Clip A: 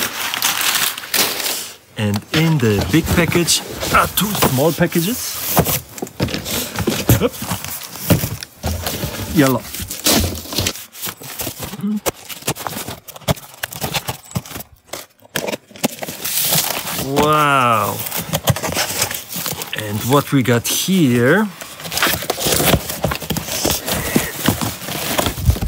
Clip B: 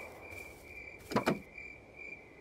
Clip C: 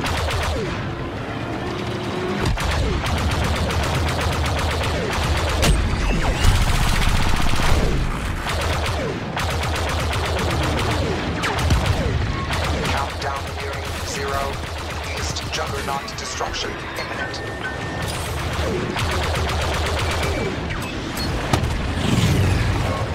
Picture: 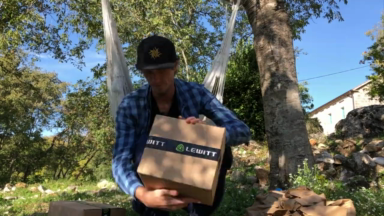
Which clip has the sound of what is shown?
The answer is A